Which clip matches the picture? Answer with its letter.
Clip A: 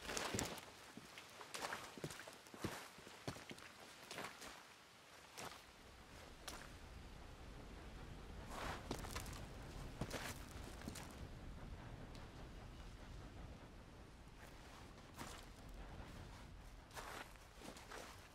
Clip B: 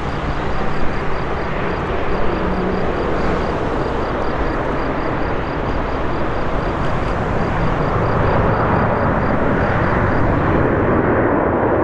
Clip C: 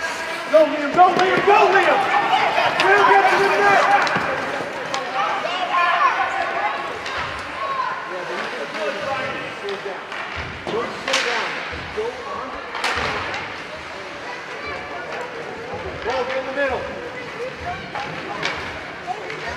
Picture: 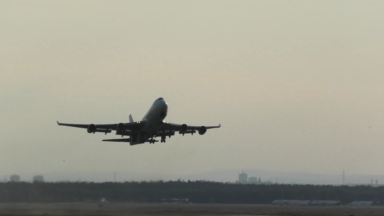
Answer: B